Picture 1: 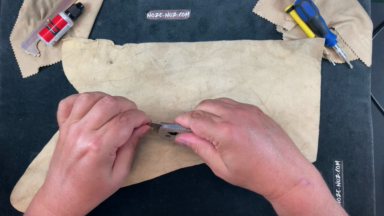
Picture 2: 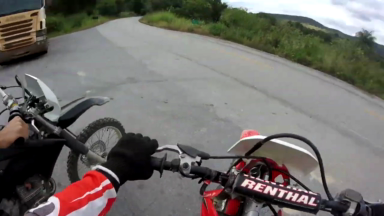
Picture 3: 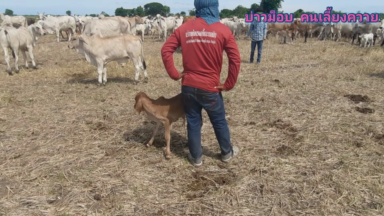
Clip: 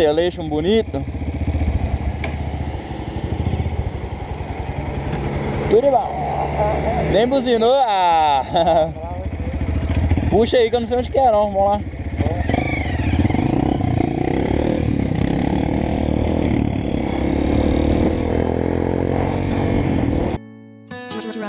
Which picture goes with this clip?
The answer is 2